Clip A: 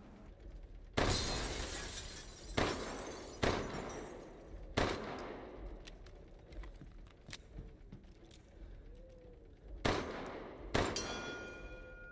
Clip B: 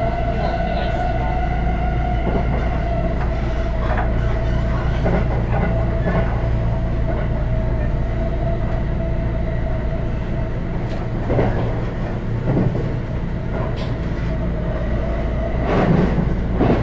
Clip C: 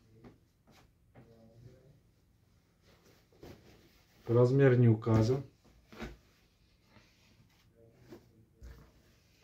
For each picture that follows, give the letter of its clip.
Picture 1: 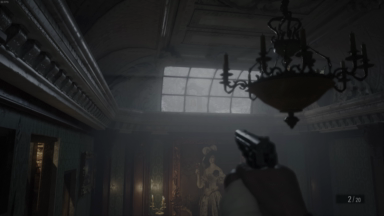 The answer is A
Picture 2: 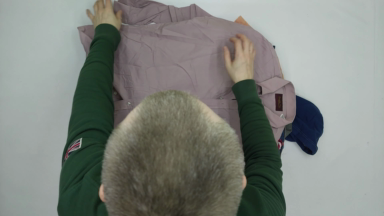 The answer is C